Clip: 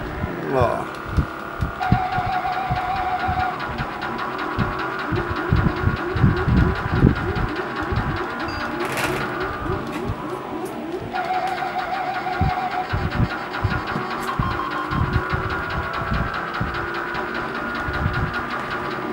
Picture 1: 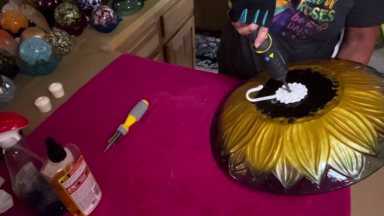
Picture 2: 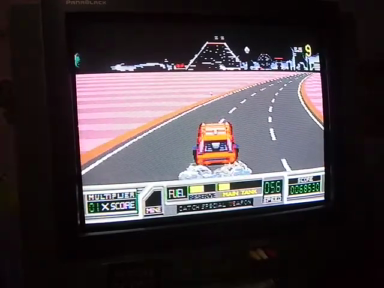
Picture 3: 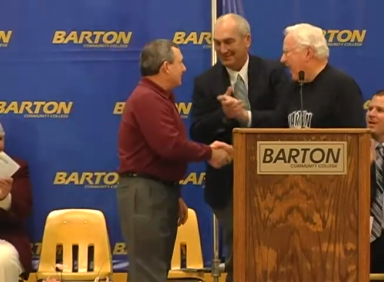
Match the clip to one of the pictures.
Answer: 2